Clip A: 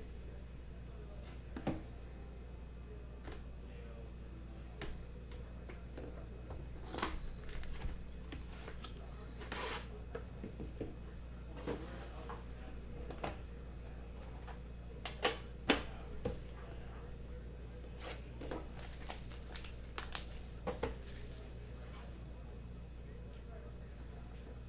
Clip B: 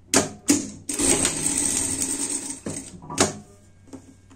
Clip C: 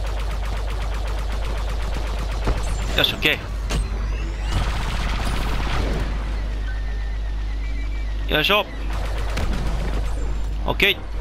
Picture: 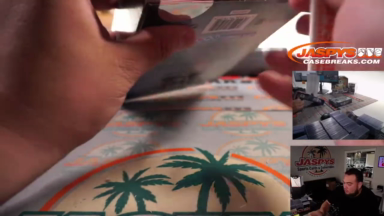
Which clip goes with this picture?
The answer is A